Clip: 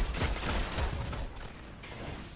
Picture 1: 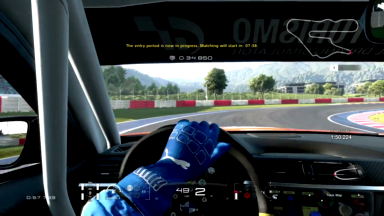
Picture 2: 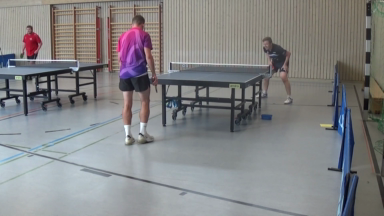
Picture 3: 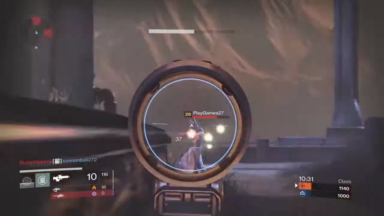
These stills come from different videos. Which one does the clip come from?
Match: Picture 3